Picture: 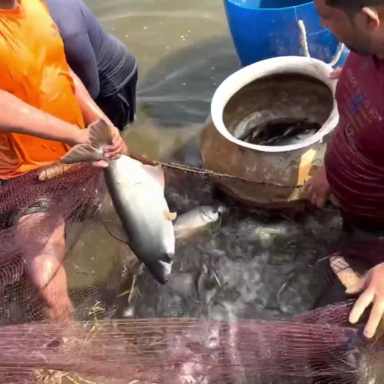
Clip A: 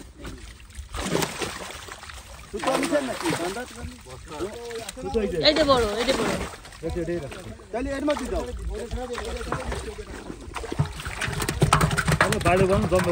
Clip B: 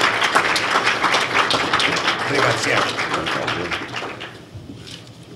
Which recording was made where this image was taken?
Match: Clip A